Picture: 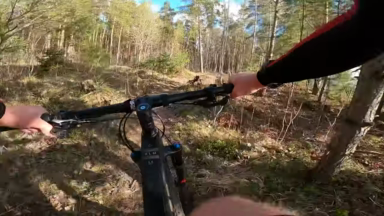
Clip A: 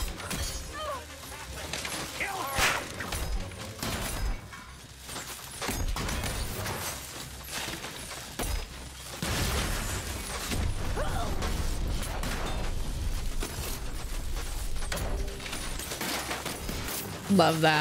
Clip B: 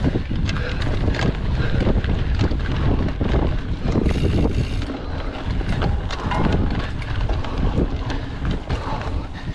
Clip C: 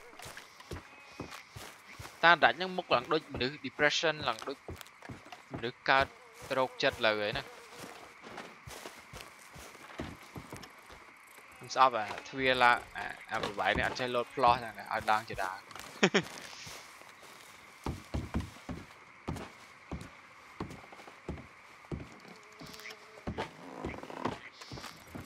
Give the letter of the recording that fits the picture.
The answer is B